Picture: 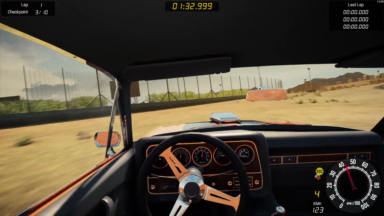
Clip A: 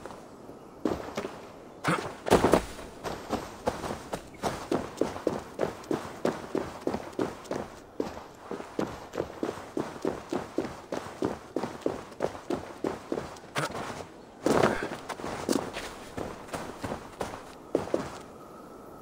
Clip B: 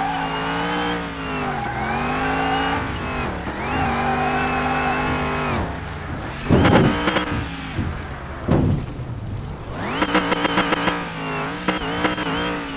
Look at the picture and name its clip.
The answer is B